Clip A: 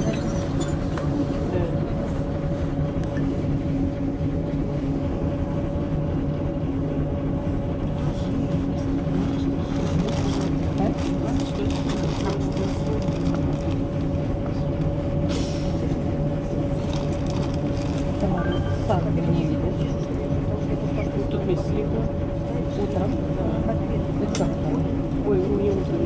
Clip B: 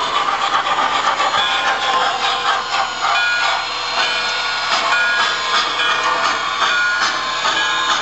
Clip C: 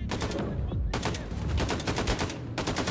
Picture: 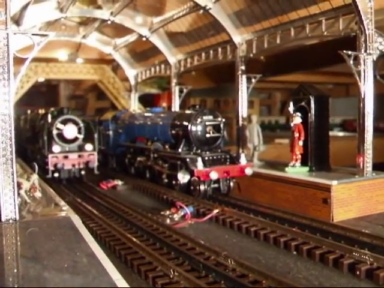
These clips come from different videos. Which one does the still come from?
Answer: B